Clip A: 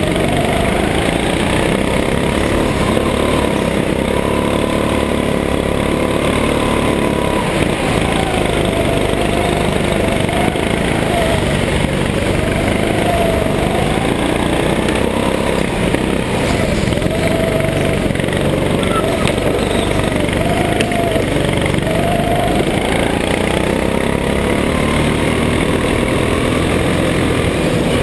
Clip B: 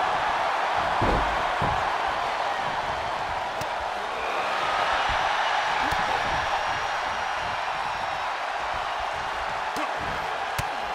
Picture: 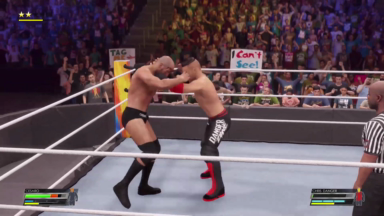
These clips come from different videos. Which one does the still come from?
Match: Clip B